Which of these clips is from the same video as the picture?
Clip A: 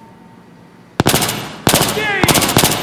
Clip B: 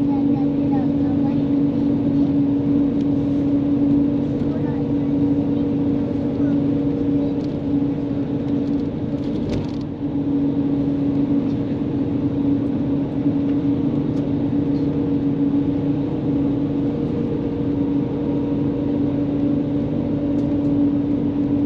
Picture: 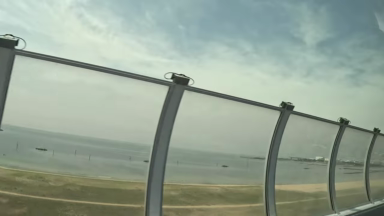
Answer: B